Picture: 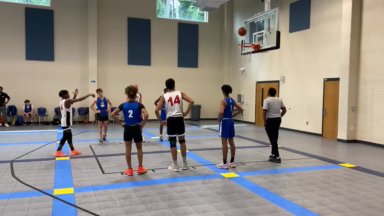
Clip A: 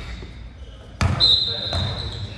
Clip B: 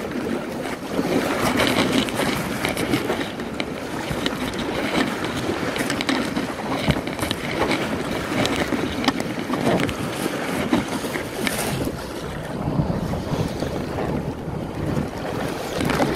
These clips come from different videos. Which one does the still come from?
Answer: A